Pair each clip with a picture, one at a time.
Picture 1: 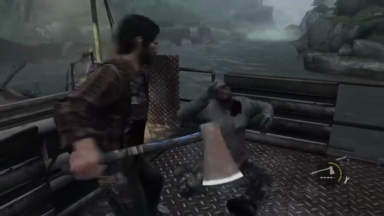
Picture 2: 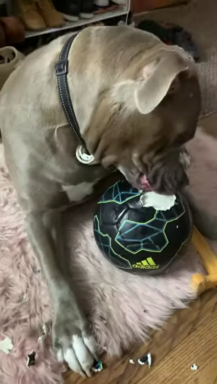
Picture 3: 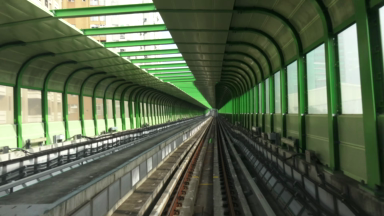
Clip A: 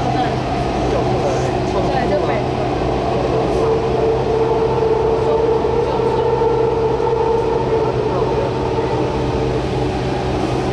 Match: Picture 3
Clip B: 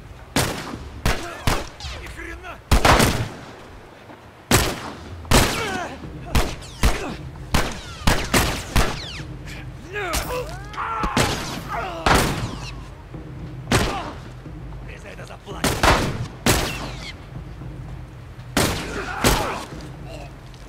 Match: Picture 1